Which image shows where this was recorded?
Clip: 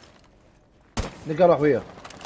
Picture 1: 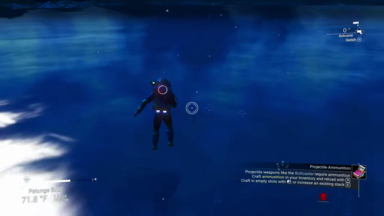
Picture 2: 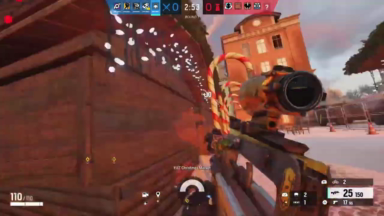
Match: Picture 2